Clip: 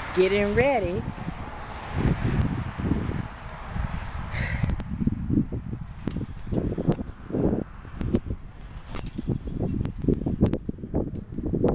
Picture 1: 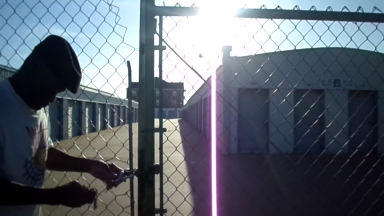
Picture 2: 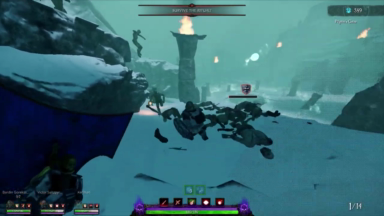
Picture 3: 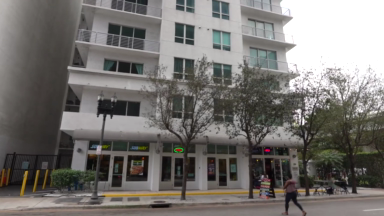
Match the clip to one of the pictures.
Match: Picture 1